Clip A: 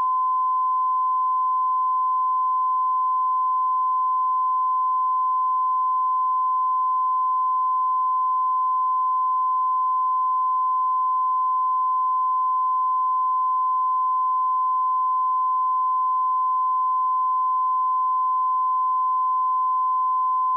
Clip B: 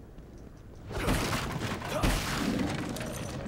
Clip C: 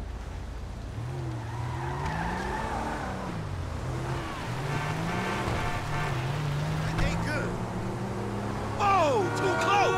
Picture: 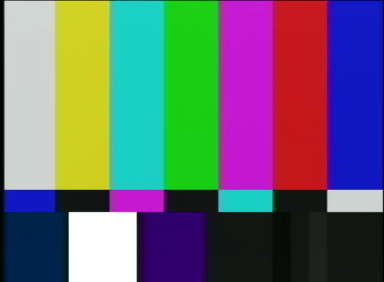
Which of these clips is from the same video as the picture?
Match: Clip A